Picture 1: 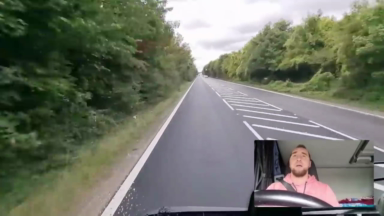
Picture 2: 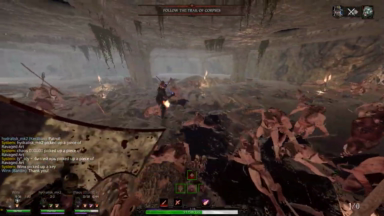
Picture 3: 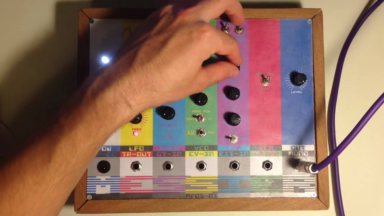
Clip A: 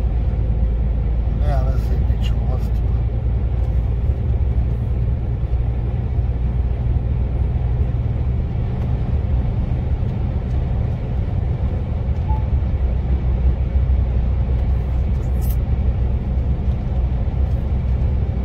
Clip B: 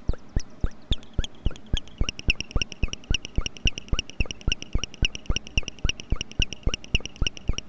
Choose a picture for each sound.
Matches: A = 1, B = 3